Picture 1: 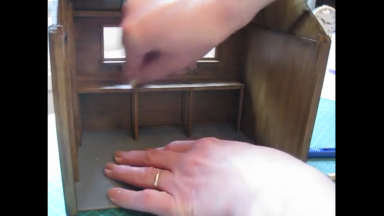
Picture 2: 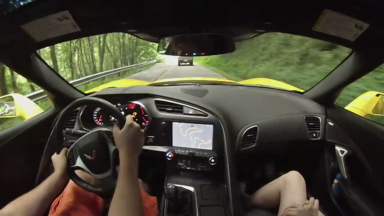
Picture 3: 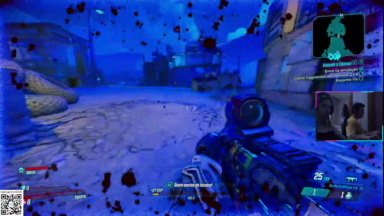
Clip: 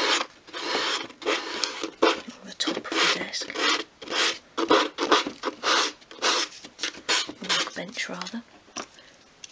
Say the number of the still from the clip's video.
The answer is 1